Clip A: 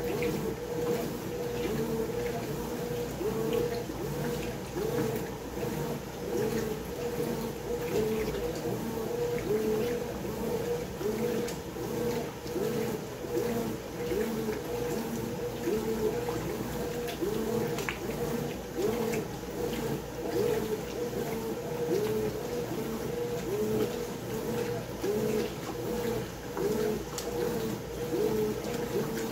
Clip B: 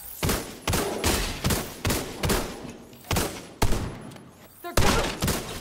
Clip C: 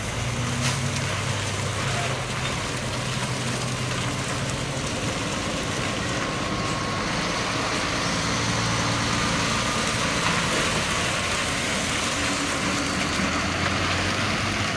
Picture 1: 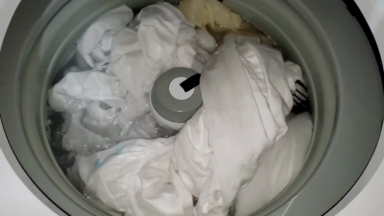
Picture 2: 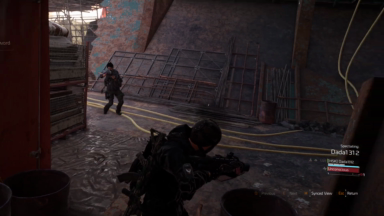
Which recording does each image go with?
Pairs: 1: A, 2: B